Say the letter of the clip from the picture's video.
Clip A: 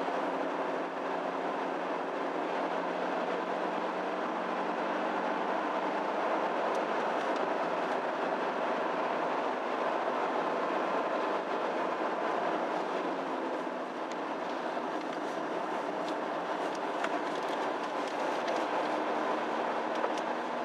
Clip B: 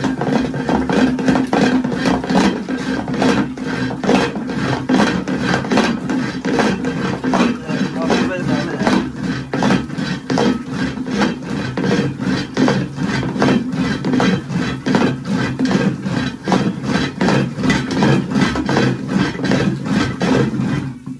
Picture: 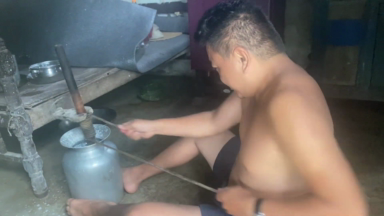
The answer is B